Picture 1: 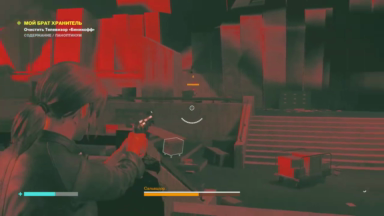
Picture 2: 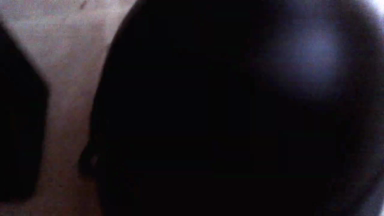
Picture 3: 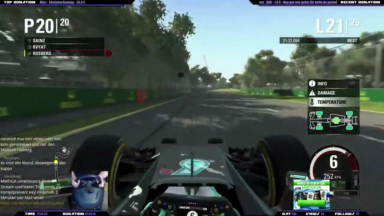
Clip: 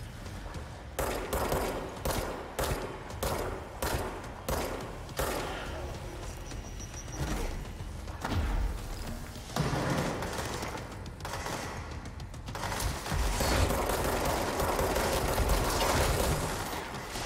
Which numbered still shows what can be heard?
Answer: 1